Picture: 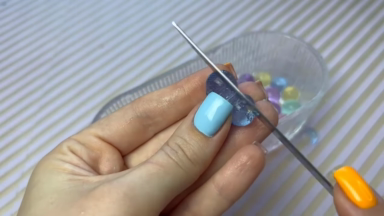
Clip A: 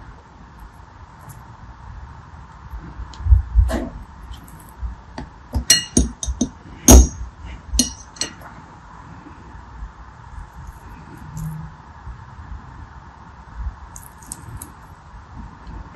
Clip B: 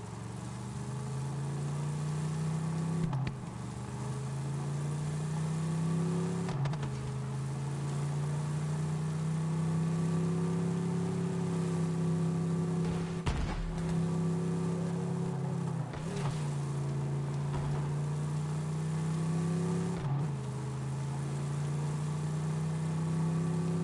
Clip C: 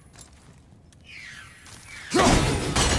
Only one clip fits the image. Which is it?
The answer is A